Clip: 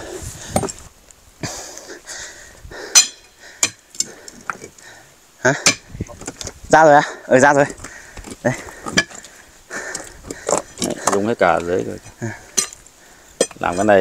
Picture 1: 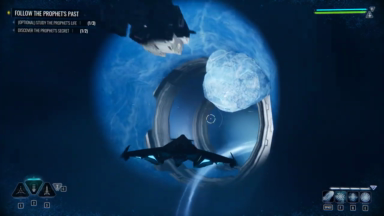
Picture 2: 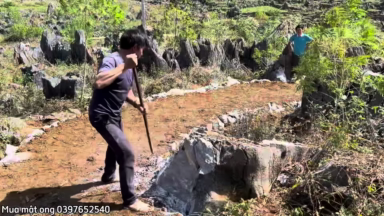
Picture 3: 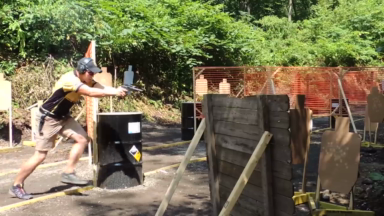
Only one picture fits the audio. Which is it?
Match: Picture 2